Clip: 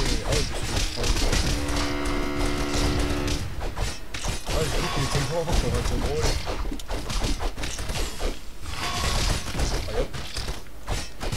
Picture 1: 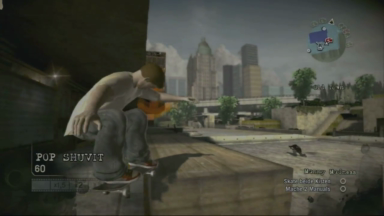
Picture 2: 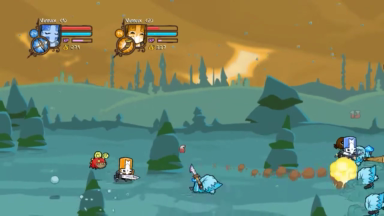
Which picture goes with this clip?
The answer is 2